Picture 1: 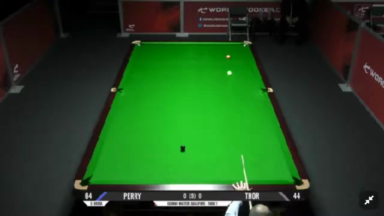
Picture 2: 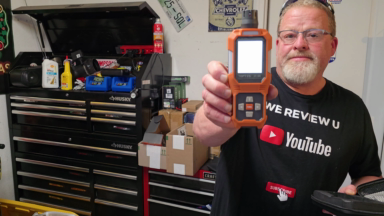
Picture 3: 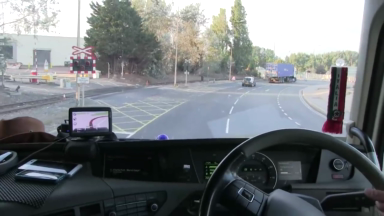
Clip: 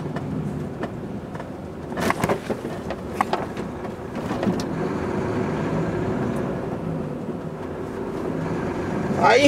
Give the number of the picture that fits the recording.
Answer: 3